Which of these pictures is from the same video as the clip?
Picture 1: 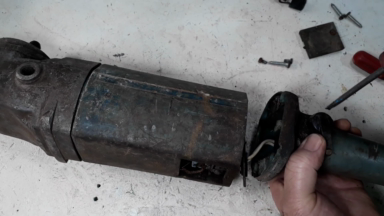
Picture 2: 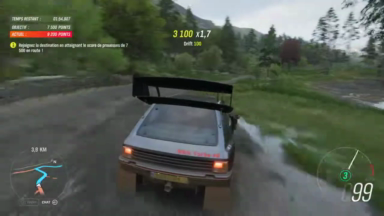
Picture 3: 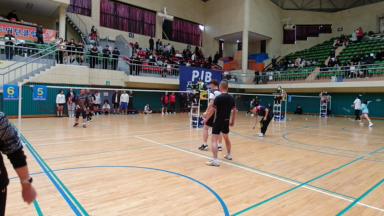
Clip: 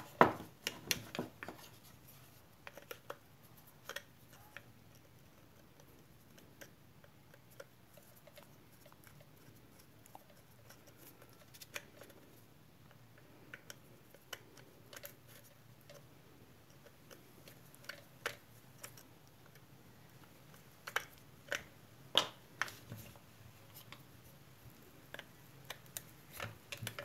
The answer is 1